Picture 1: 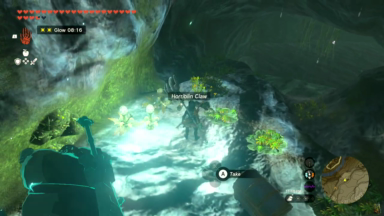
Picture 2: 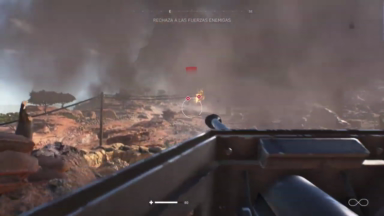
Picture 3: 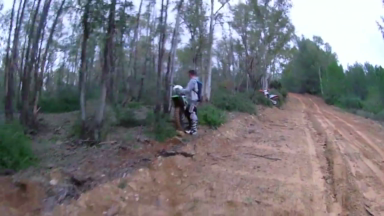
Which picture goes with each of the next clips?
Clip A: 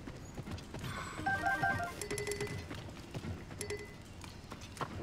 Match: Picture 1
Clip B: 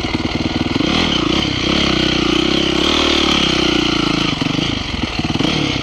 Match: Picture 3